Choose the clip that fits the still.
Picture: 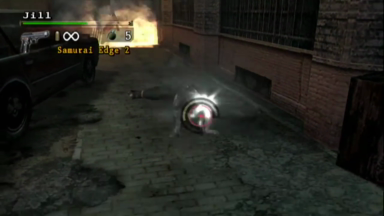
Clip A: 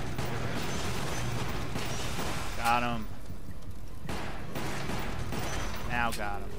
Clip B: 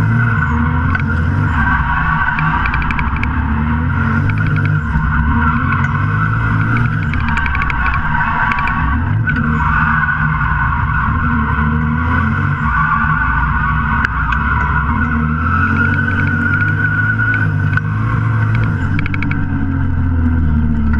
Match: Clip A